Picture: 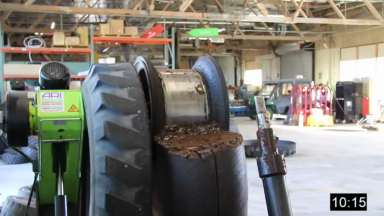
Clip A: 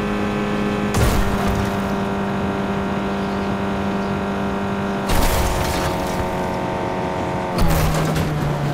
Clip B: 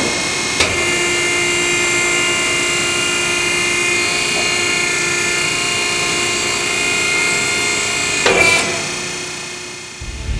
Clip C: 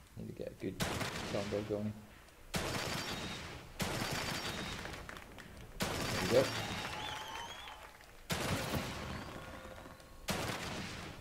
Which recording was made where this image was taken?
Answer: B